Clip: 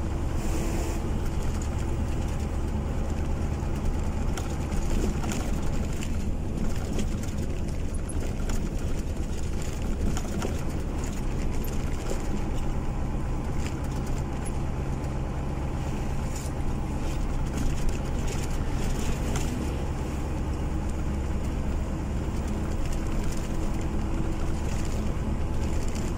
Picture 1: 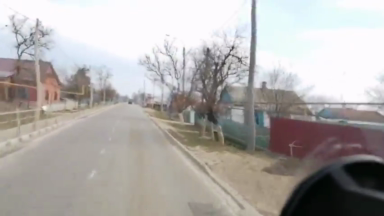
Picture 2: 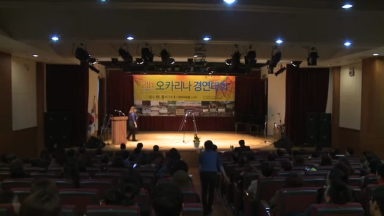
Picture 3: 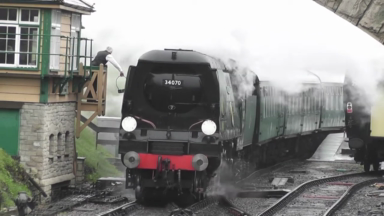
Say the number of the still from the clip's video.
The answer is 1